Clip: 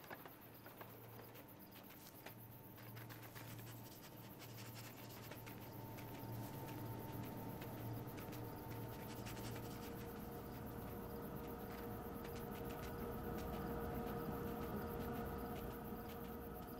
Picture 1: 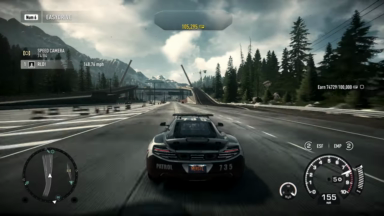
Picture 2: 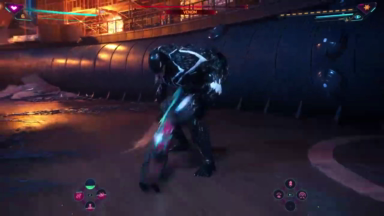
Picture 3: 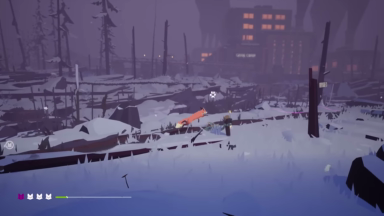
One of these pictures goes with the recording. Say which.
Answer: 3